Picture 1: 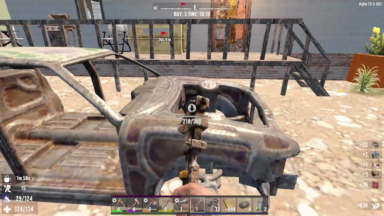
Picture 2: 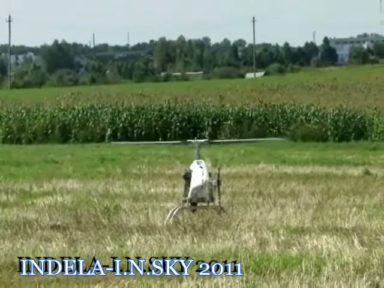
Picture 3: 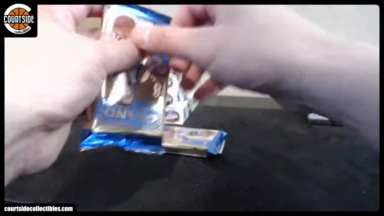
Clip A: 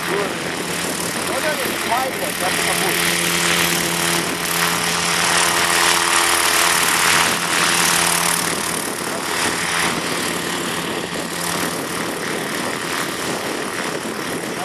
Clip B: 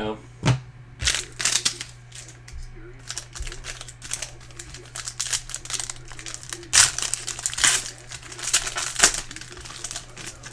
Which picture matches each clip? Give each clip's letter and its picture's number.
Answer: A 2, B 3